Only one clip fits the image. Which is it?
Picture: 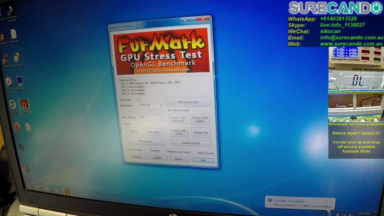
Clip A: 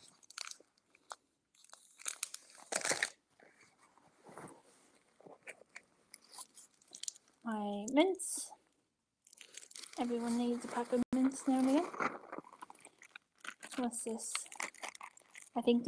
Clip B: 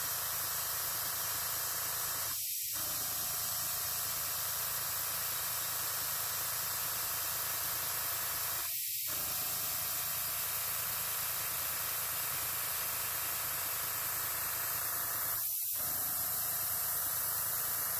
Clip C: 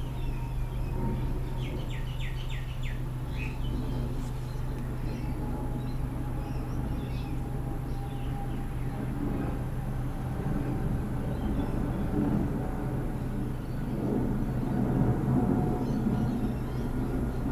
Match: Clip C